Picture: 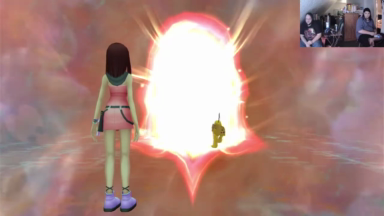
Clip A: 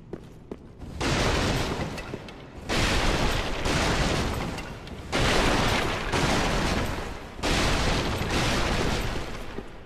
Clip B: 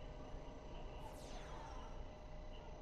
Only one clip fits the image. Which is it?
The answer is B